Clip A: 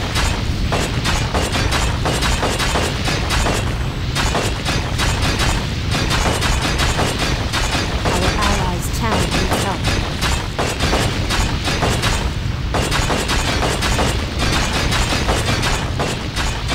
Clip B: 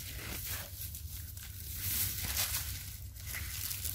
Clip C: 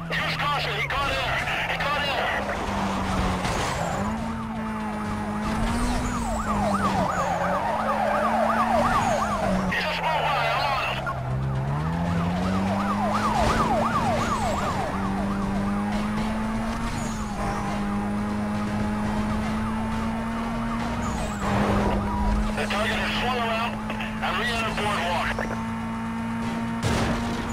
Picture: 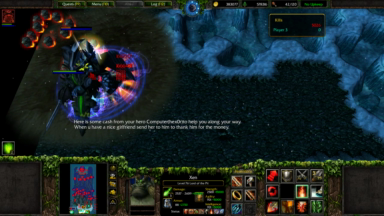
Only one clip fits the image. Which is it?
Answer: A